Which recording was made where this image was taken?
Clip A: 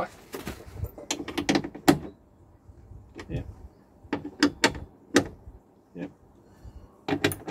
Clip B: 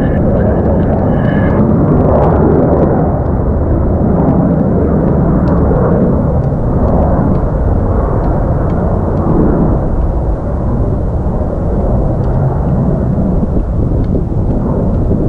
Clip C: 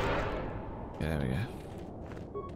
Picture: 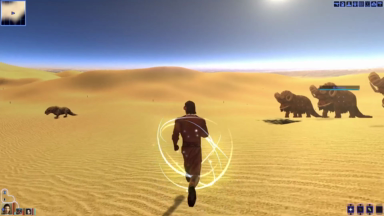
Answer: C